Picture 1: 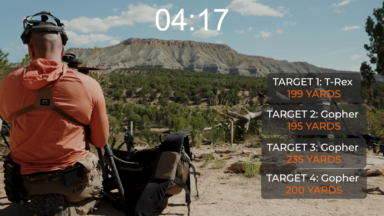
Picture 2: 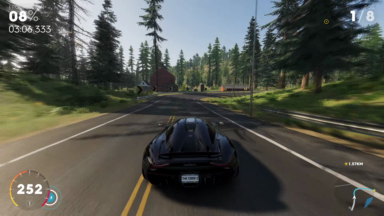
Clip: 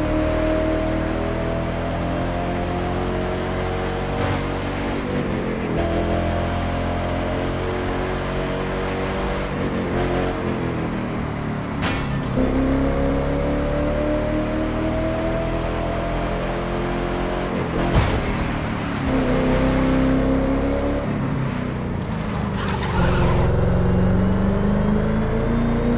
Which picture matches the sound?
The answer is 2